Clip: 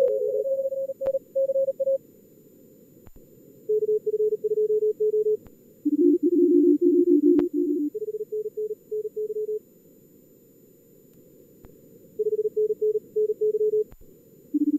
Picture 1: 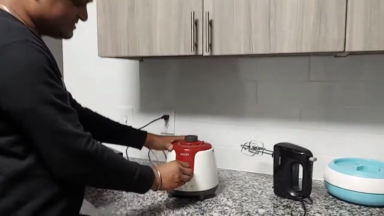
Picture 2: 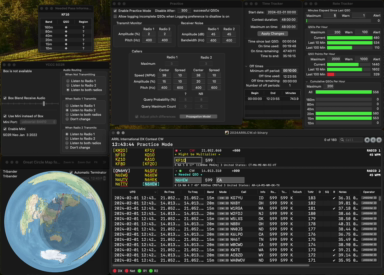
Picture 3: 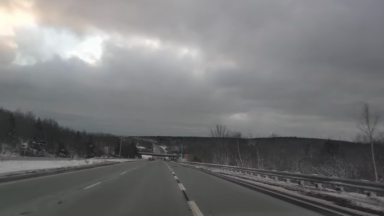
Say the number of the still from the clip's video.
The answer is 2